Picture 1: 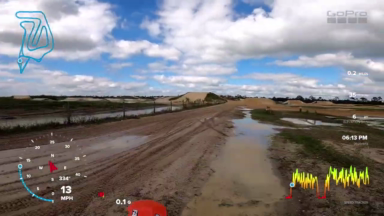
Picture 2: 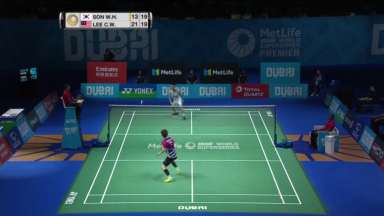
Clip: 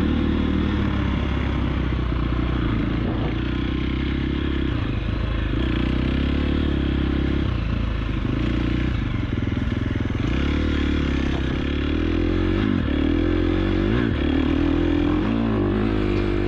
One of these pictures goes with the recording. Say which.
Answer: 1